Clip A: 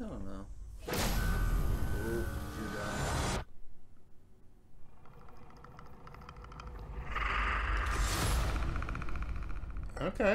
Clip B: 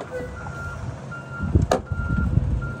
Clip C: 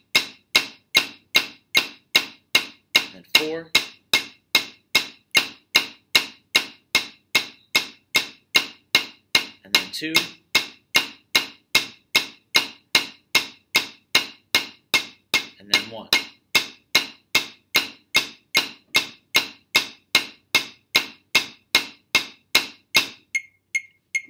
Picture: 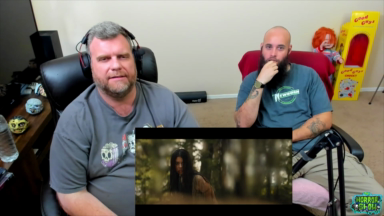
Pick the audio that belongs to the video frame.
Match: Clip A